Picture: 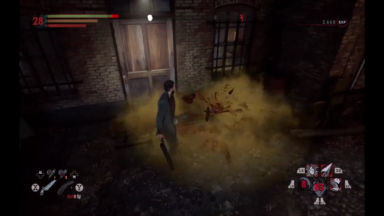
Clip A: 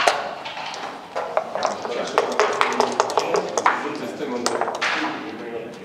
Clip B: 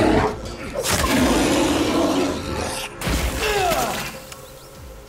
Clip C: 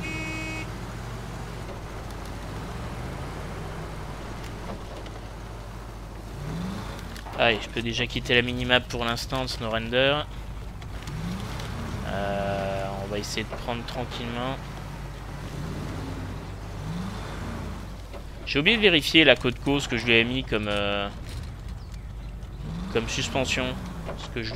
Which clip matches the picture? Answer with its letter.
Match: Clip B